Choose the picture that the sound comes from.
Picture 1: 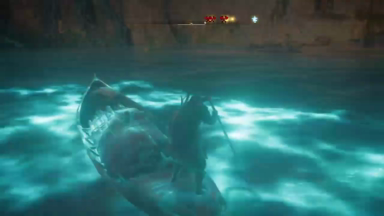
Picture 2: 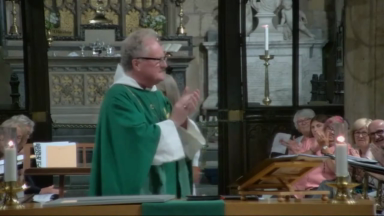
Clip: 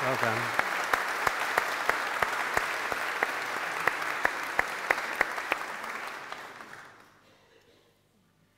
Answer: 2